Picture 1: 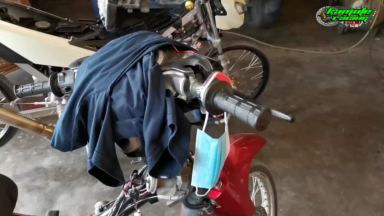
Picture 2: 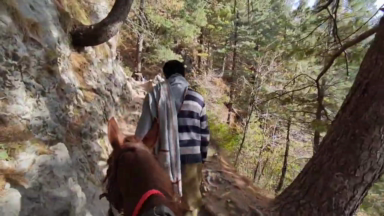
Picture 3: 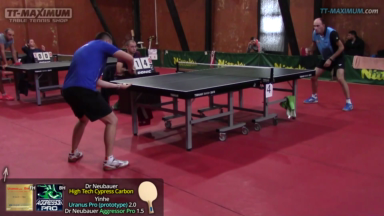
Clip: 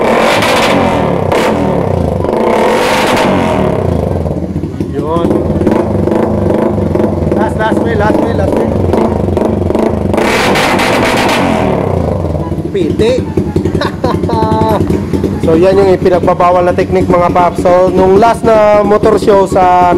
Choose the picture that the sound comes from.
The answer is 1